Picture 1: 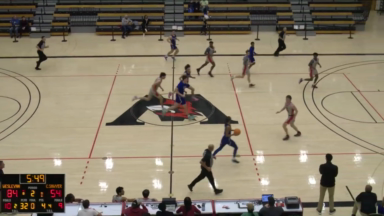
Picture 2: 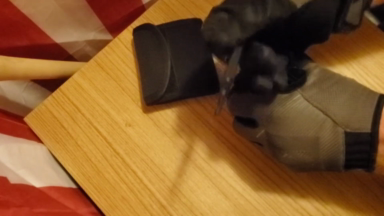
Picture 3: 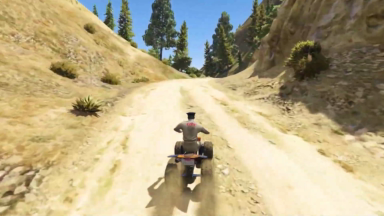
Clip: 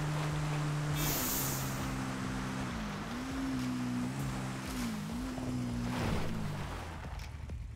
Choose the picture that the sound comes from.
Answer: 3